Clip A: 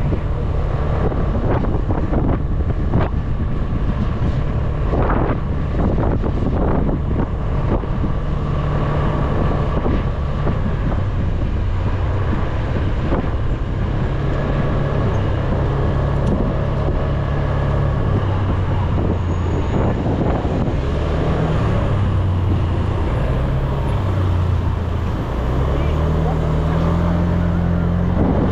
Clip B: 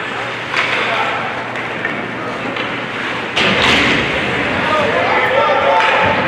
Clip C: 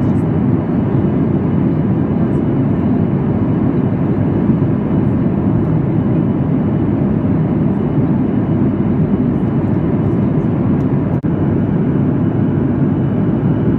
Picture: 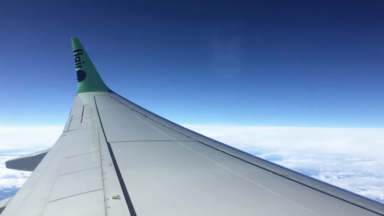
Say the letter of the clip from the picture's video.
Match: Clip C